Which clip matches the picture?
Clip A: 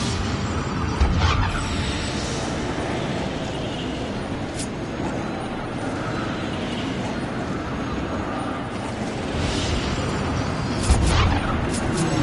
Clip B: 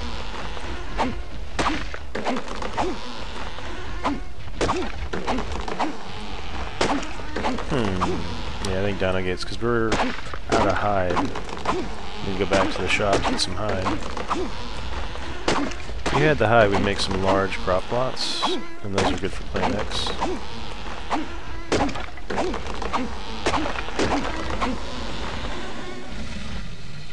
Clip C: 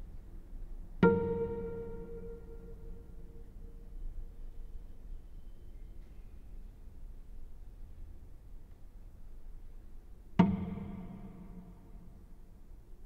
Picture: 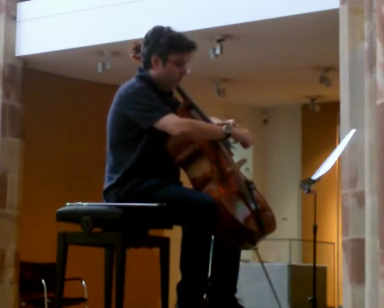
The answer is C